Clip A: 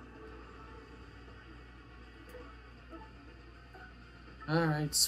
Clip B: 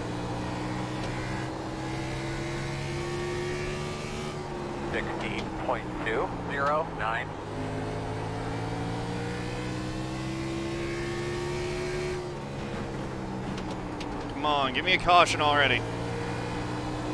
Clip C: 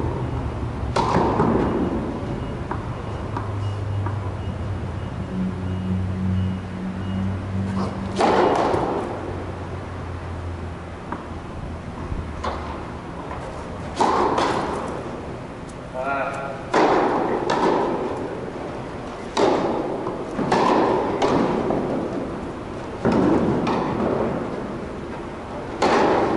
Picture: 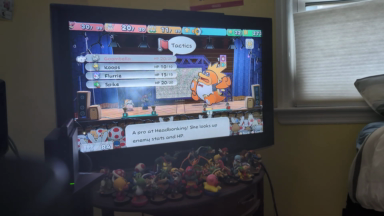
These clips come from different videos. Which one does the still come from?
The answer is A